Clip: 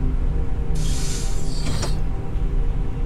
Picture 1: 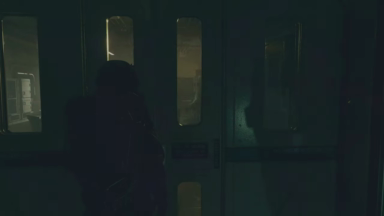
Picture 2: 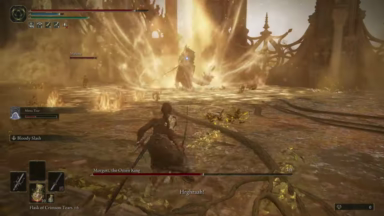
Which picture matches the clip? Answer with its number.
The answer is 1